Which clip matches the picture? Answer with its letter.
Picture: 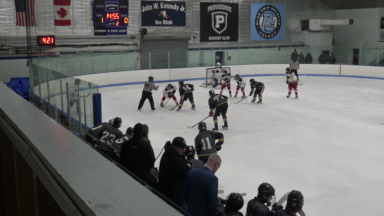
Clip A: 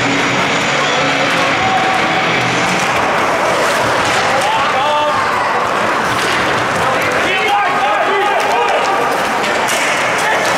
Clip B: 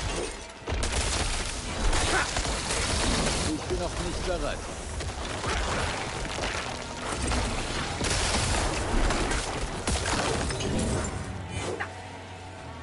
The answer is A